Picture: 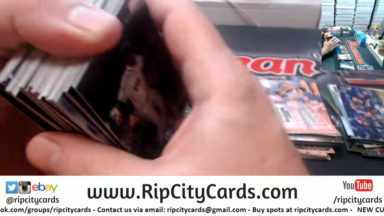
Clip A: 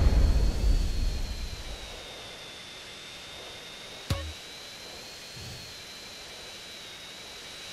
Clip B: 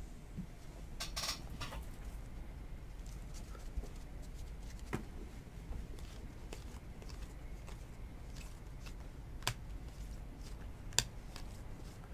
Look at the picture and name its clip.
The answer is B